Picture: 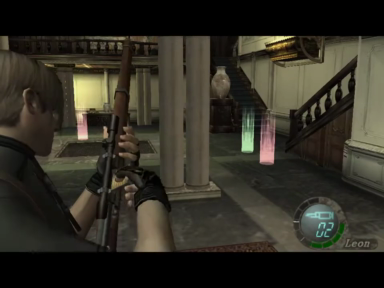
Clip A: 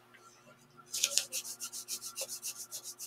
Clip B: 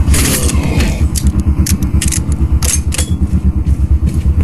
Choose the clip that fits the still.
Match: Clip B